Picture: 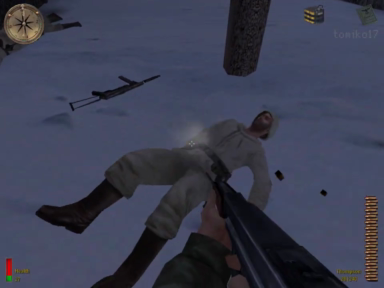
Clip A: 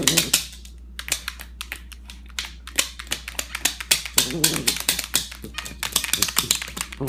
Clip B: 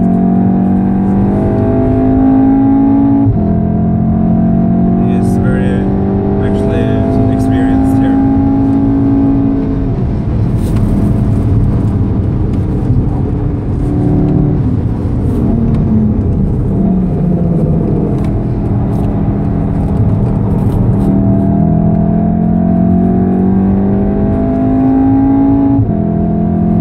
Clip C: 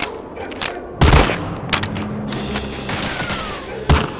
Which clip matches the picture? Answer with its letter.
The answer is C